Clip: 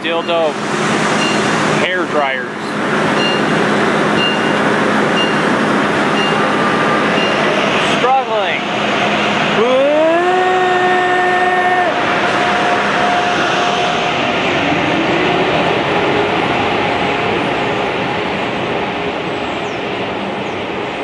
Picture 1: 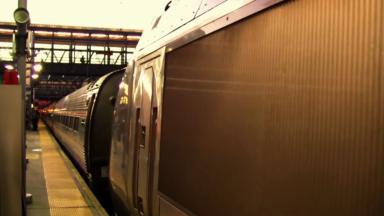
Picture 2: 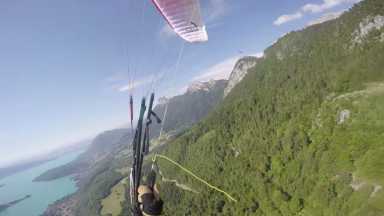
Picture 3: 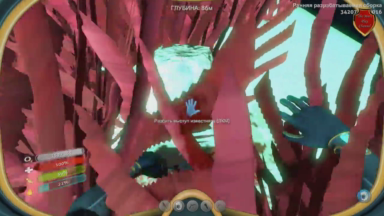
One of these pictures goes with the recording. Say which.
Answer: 1